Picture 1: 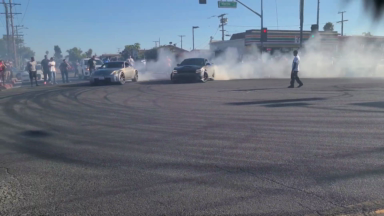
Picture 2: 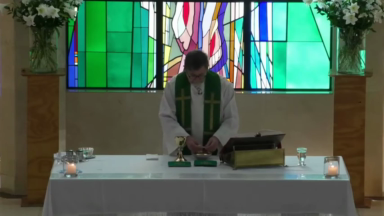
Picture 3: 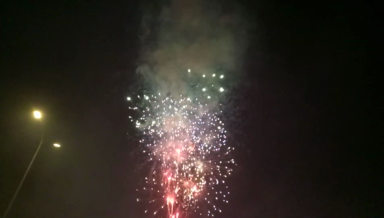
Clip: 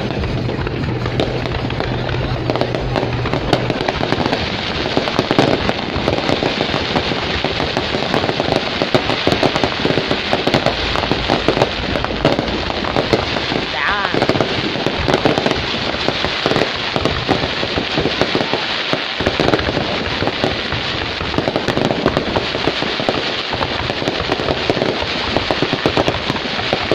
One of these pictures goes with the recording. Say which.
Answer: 3